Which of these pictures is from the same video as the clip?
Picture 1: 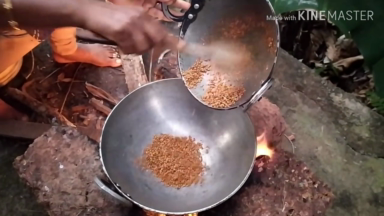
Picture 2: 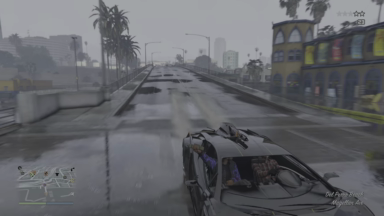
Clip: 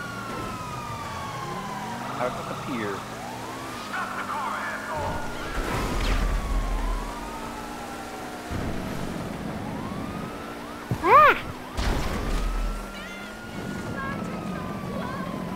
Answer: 2